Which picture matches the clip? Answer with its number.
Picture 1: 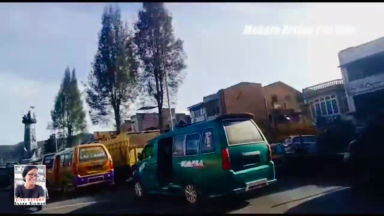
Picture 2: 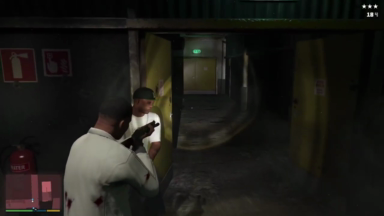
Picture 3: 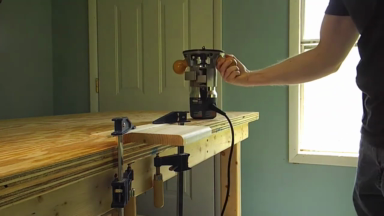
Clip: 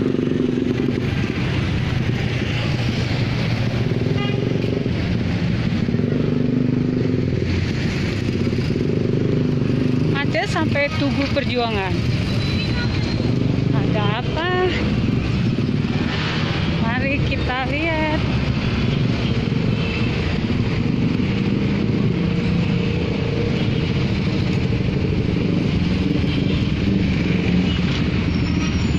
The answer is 1